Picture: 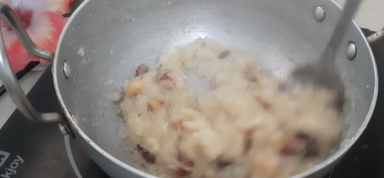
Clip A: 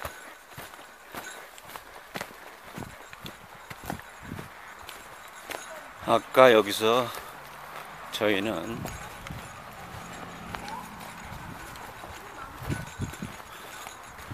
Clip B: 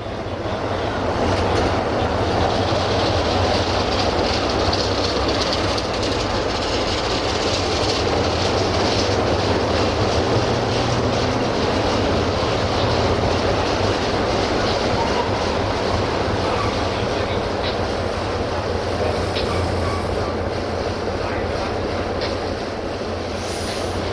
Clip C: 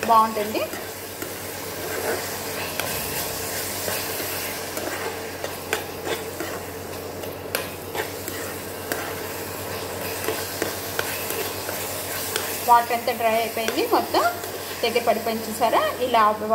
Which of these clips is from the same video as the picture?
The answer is C